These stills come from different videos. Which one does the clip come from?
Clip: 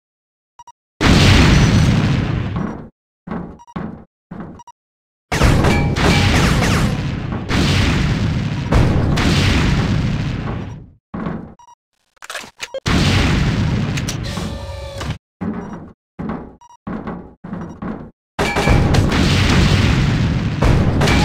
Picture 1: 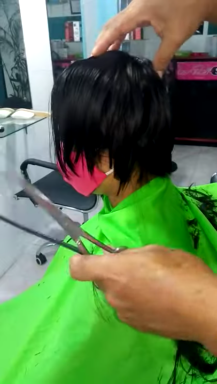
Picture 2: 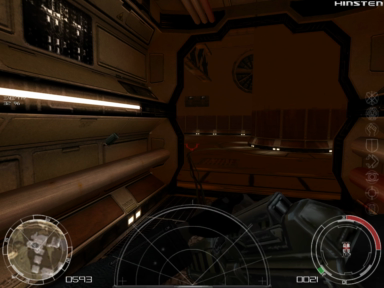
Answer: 2